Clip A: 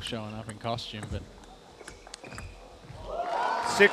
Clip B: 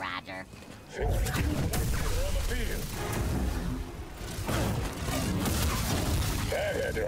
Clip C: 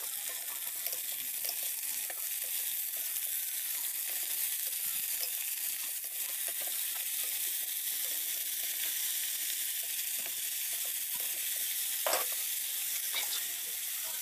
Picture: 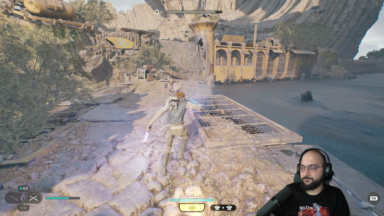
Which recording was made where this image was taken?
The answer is B